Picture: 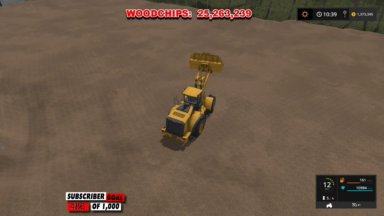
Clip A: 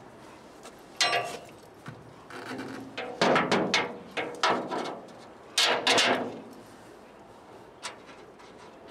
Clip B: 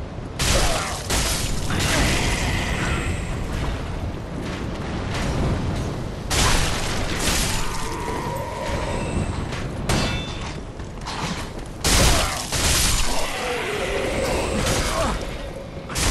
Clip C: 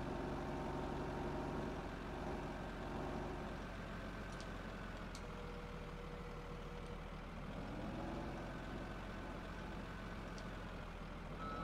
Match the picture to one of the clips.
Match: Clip C